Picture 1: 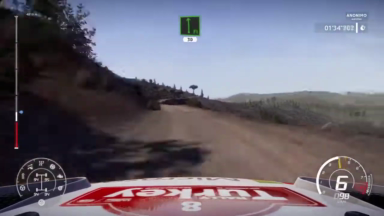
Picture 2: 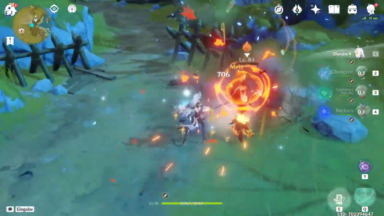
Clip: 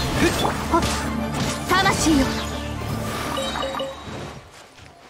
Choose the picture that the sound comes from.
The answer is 2